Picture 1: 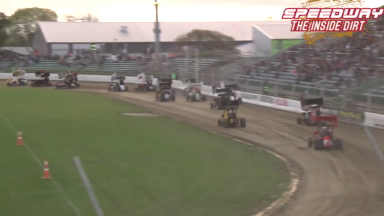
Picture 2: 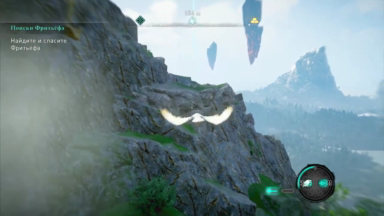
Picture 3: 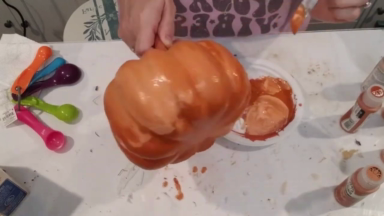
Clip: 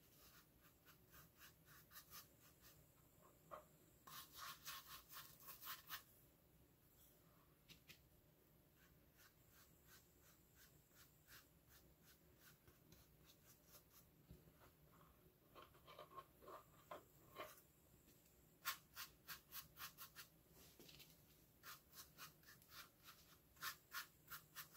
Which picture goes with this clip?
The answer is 3